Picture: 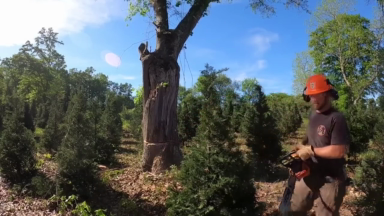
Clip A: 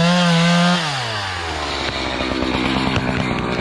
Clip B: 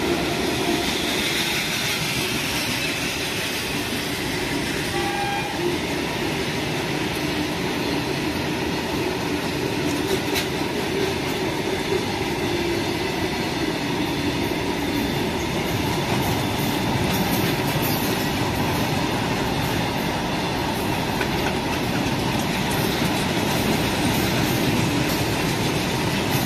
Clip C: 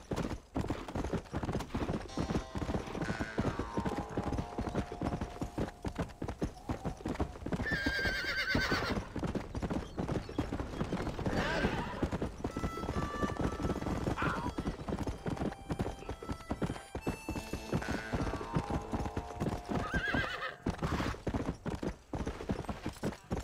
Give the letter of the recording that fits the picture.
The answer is A